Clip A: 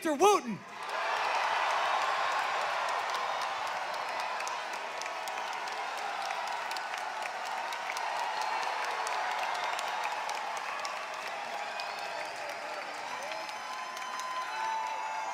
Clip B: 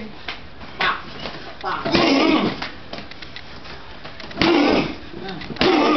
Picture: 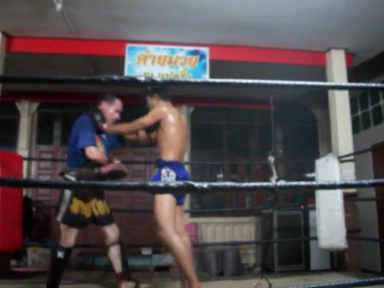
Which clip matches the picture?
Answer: B